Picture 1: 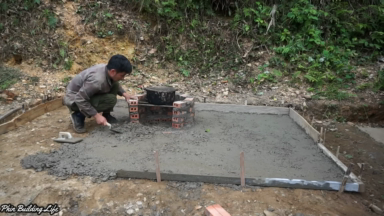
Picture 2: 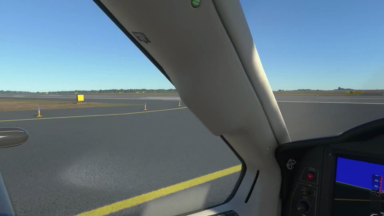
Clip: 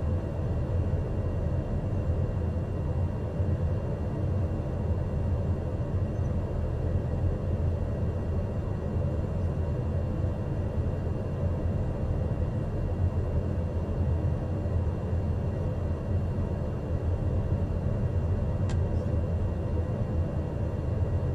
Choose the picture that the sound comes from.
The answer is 2